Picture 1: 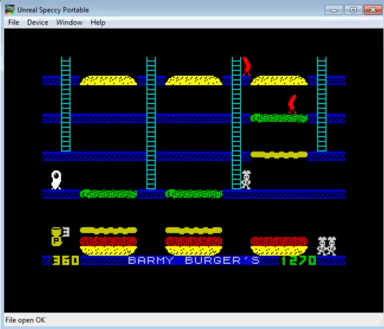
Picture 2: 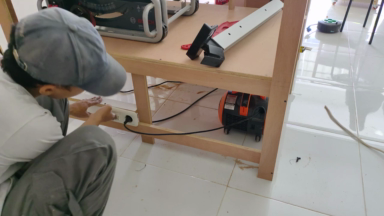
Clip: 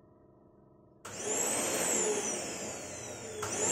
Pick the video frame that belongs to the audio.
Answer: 2